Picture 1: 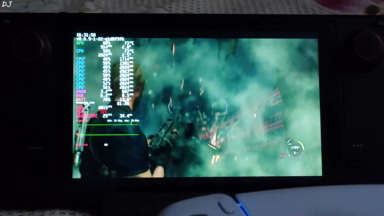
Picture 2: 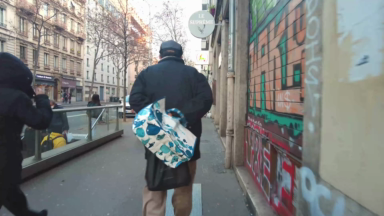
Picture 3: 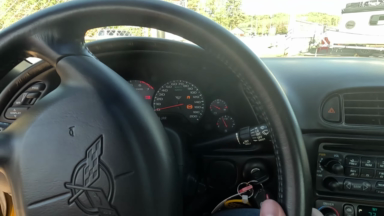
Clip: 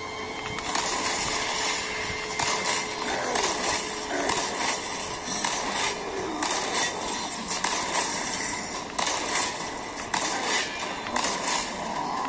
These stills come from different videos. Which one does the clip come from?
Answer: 1